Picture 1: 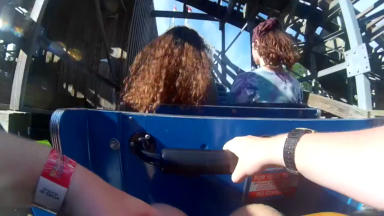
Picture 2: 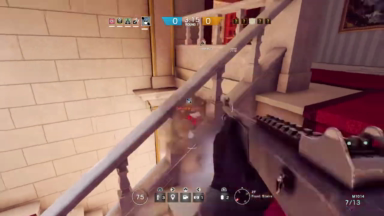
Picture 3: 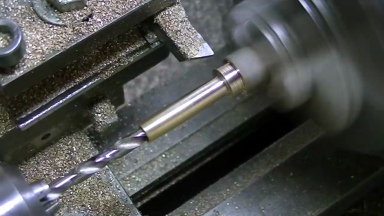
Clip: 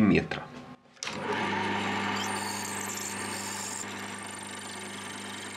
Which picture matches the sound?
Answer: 3